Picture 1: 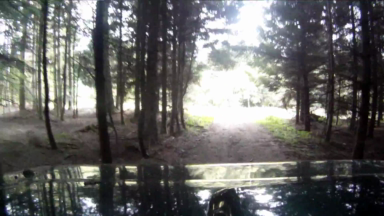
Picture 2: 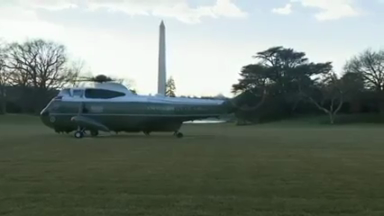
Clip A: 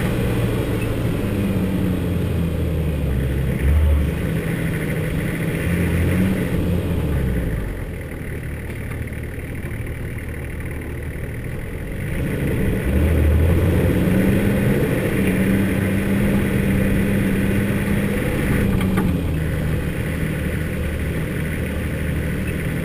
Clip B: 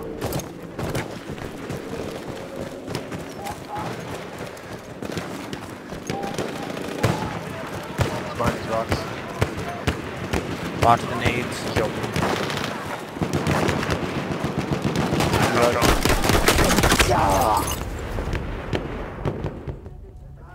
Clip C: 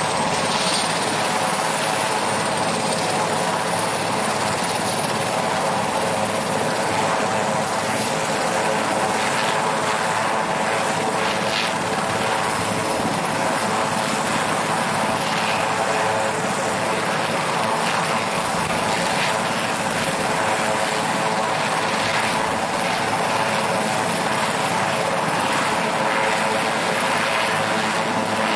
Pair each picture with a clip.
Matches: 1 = A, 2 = C